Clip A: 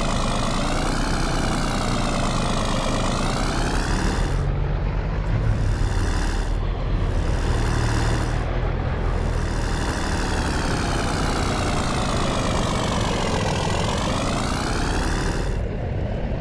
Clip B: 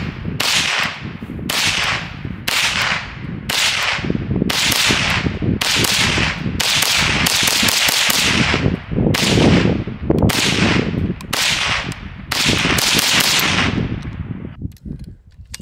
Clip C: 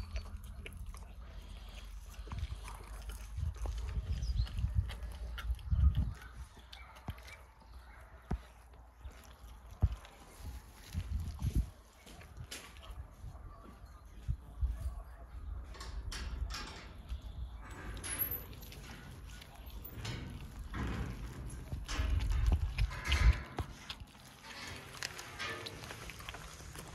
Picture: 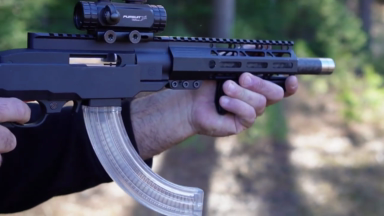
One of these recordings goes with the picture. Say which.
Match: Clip B